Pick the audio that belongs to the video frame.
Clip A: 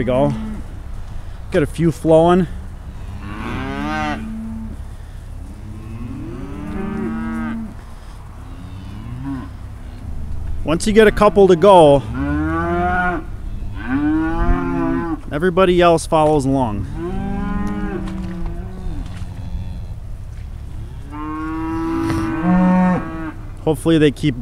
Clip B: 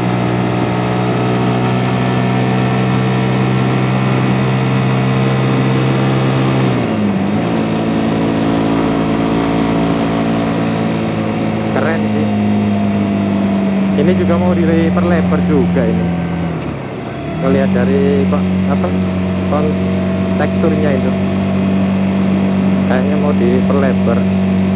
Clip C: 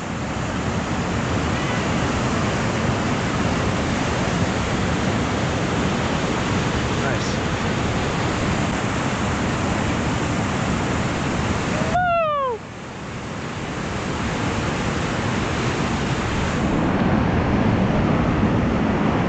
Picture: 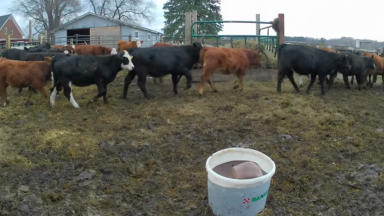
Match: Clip A